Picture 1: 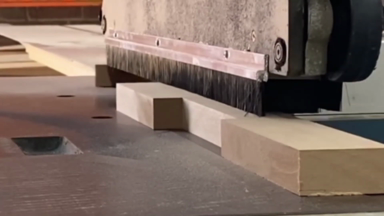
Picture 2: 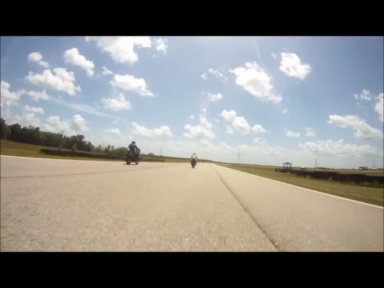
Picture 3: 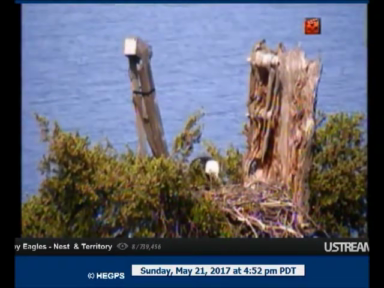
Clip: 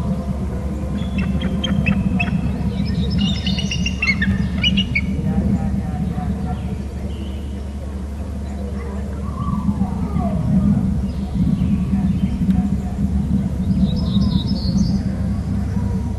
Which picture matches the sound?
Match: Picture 3